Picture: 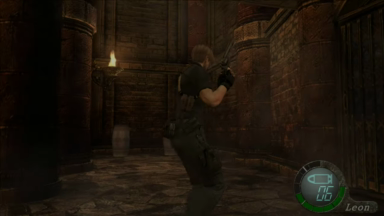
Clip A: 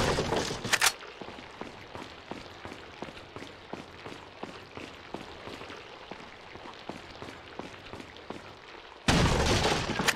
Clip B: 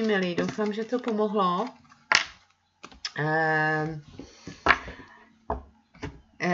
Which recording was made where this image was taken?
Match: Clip A